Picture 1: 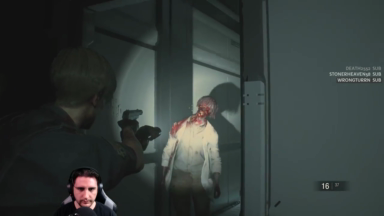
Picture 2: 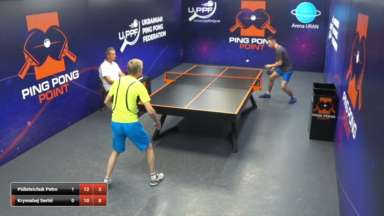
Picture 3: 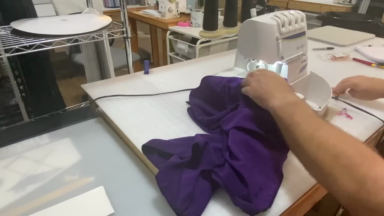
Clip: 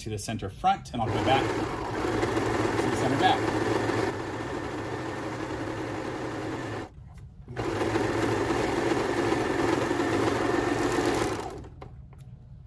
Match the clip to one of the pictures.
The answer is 3